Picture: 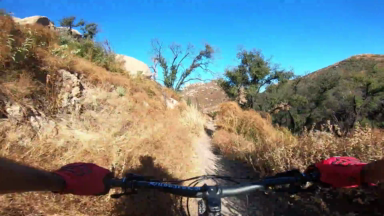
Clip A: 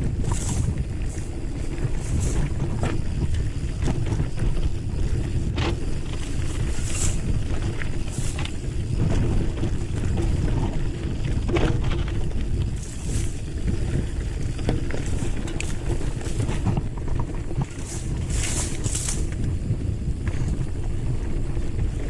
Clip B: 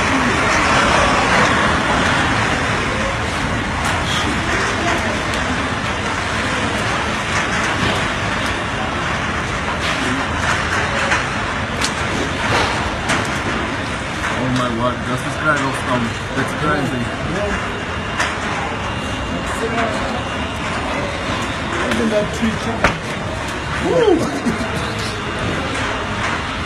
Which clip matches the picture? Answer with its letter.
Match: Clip A